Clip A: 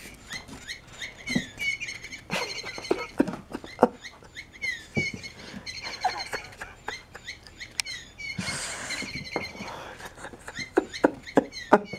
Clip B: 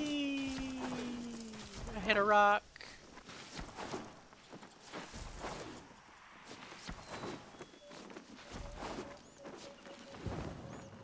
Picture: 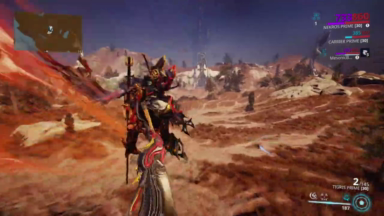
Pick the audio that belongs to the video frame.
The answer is B